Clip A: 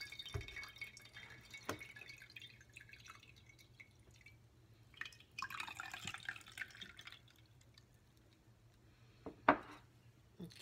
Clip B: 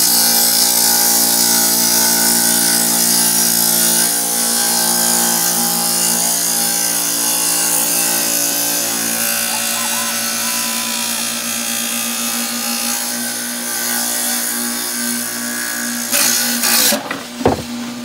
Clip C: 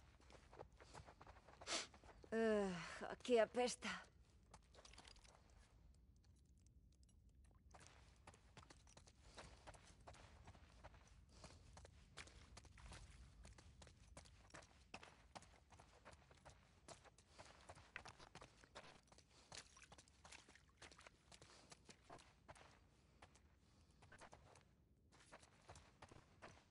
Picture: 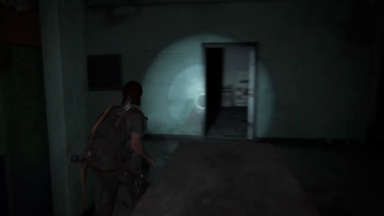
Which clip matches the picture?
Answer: C